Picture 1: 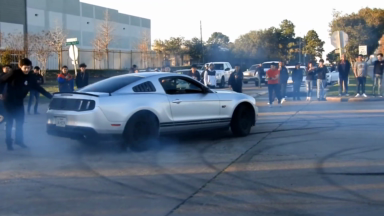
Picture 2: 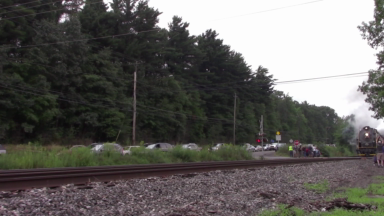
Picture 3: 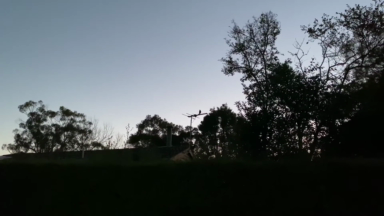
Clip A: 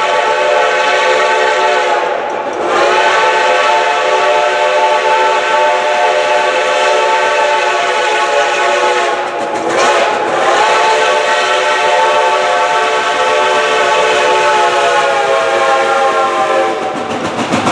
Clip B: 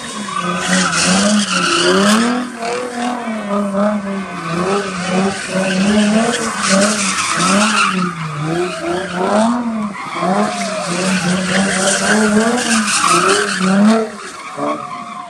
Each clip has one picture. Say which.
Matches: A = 2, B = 1